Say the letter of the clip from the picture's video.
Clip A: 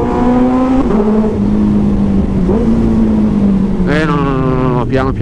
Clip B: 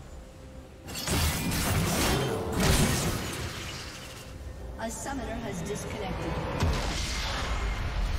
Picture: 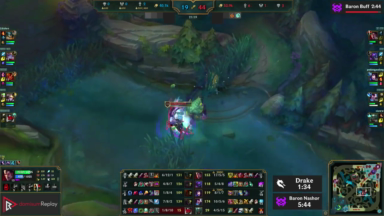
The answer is B